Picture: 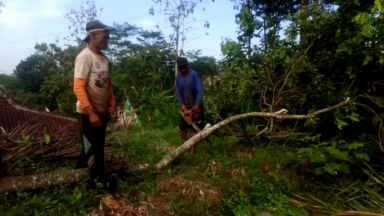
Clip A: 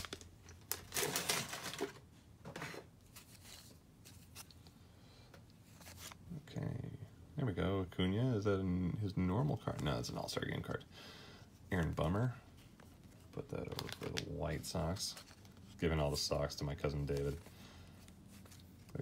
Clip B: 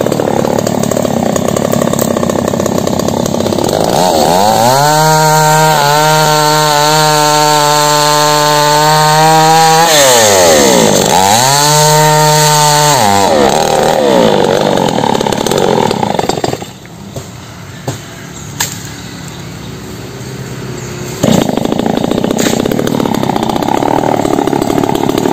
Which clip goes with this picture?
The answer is B